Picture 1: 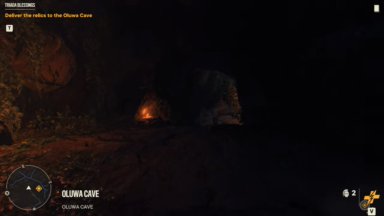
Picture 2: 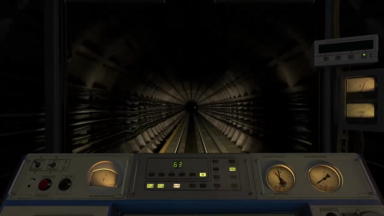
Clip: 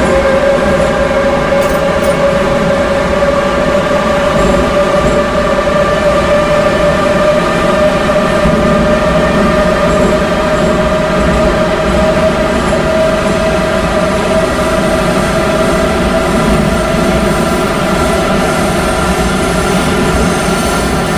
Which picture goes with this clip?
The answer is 2